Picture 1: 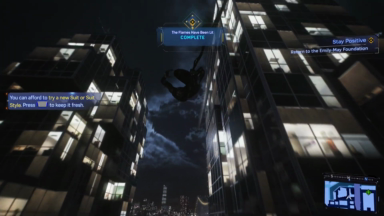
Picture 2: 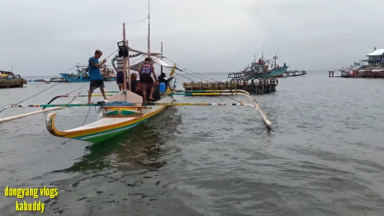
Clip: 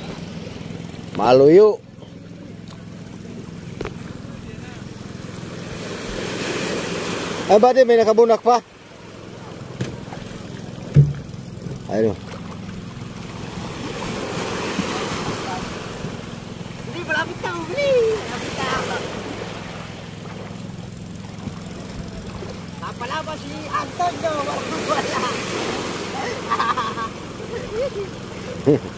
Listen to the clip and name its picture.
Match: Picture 2